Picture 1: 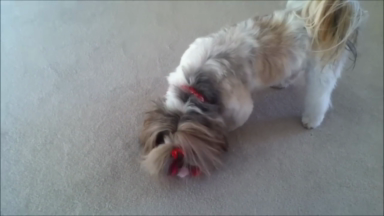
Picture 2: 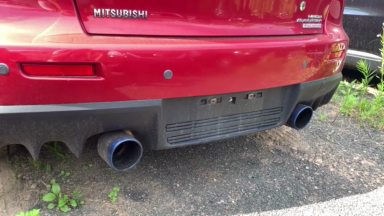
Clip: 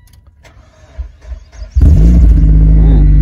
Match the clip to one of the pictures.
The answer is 2